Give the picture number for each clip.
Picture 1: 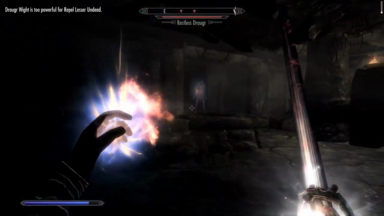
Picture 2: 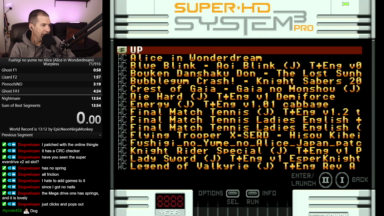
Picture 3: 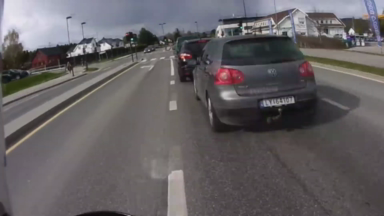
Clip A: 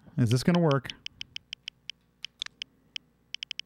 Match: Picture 2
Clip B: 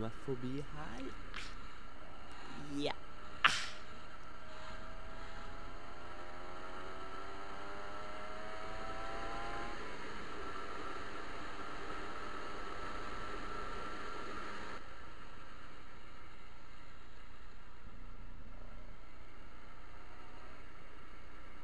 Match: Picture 3